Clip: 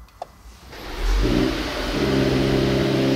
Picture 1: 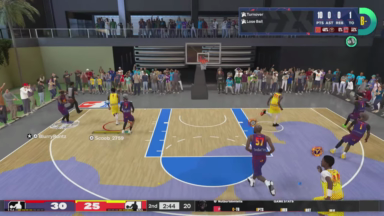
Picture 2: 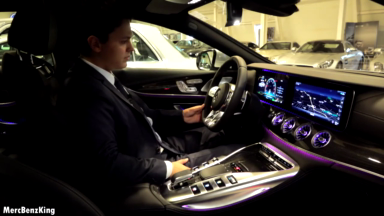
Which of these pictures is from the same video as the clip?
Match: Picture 2